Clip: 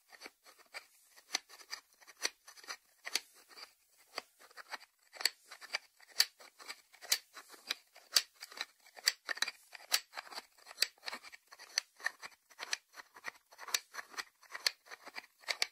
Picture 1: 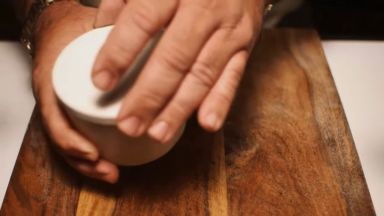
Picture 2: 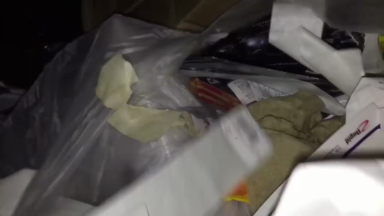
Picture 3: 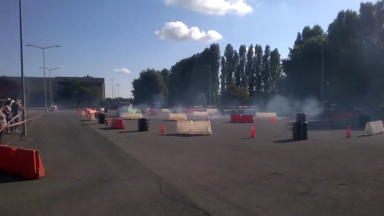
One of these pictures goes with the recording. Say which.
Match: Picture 1